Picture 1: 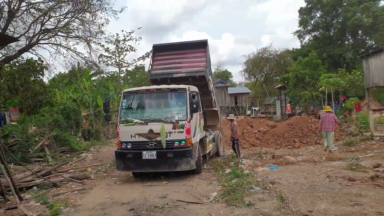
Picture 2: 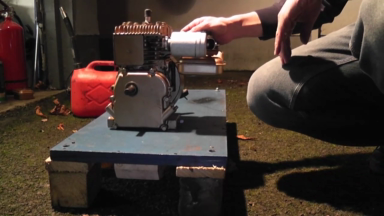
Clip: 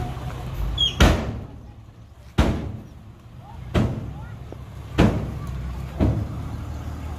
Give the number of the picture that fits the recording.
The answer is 1